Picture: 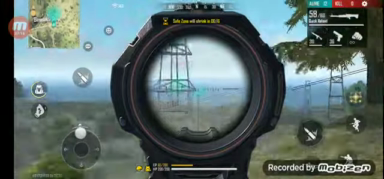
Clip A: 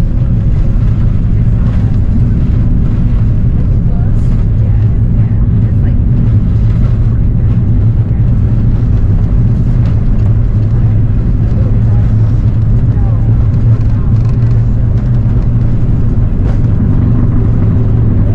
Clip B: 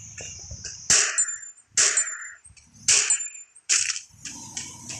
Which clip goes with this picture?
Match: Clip B